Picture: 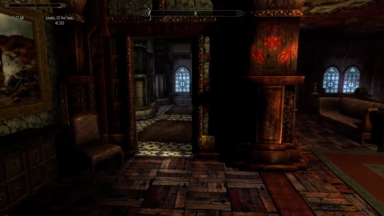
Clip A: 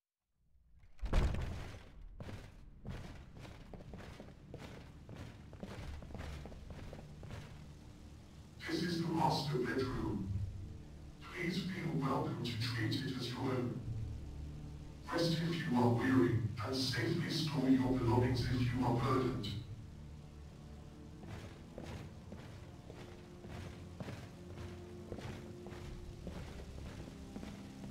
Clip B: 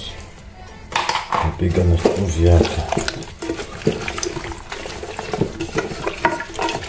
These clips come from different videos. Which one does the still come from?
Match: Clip A